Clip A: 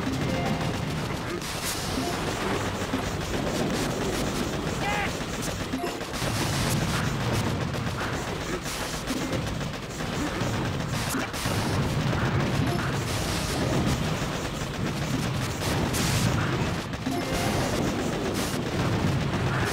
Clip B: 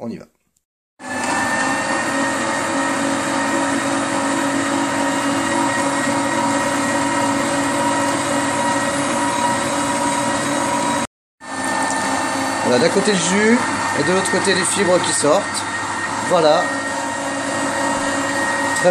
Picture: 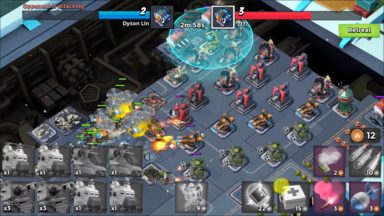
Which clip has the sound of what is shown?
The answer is A